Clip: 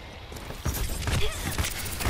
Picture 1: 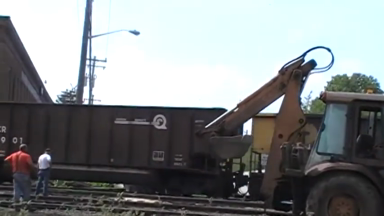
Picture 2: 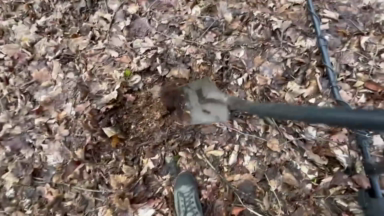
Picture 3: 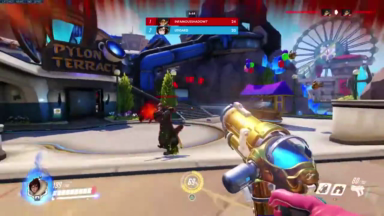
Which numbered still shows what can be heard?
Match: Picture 3